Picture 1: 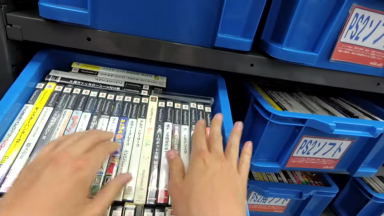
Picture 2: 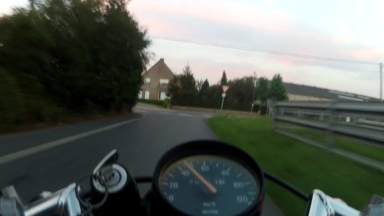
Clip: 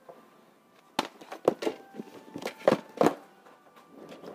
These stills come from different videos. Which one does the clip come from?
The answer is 1